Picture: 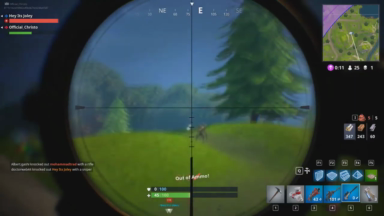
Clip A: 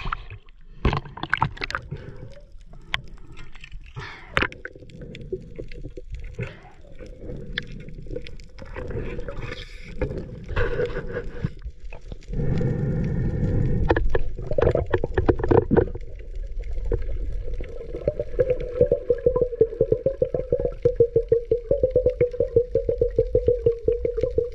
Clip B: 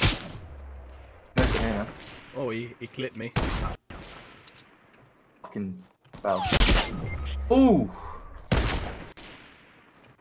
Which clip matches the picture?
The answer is B